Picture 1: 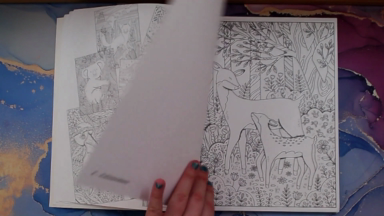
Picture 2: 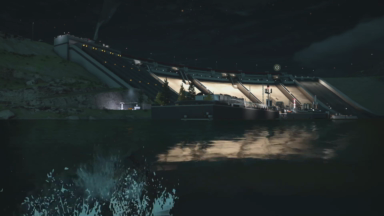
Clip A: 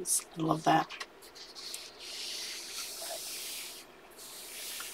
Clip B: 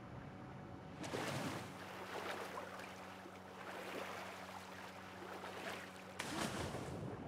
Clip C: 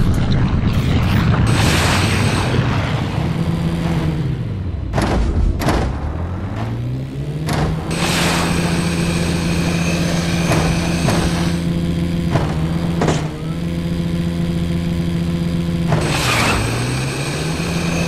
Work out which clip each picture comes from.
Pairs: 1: A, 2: B